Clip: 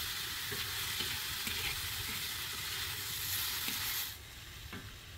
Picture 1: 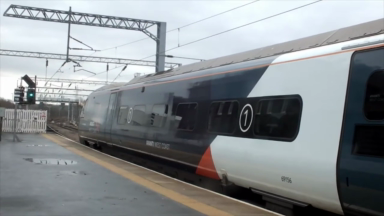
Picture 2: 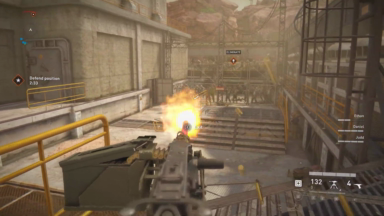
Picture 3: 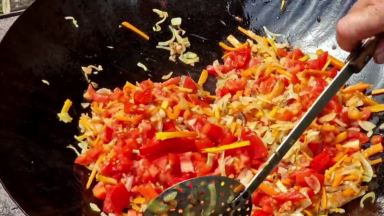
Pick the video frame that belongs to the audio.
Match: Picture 3